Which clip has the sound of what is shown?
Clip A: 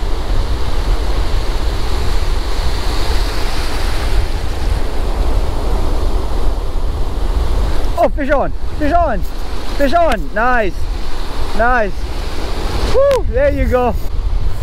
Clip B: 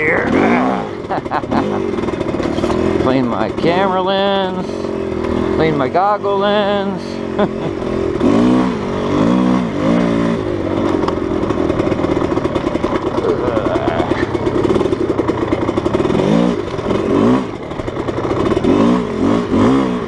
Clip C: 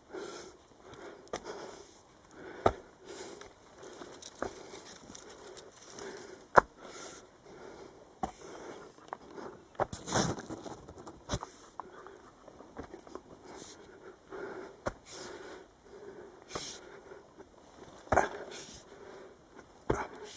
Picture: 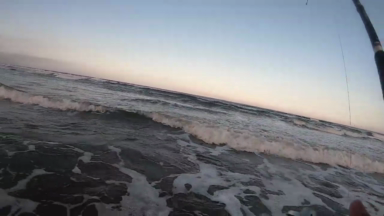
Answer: A